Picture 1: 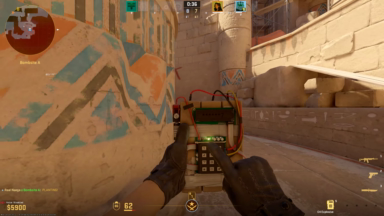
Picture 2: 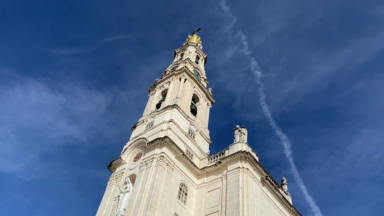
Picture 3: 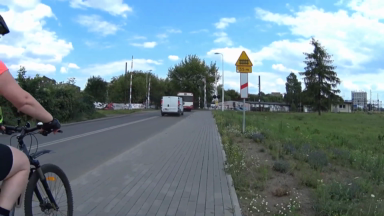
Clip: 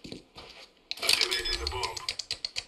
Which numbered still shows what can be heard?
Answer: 1